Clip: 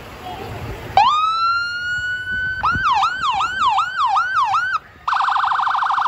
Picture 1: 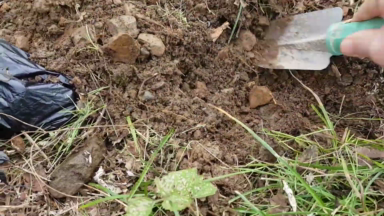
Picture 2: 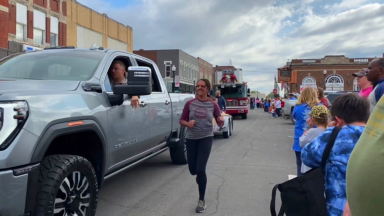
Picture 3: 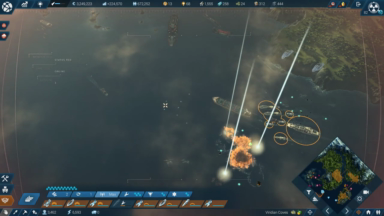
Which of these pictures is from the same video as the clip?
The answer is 2